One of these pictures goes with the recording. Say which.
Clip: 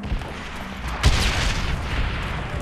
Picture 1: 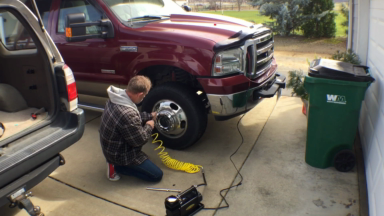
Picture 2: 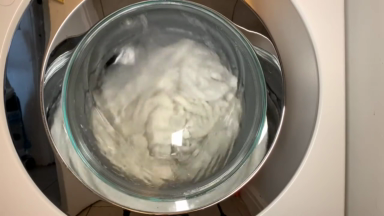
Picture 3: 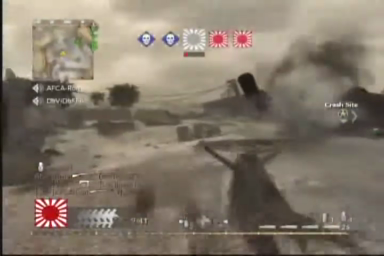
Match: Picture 3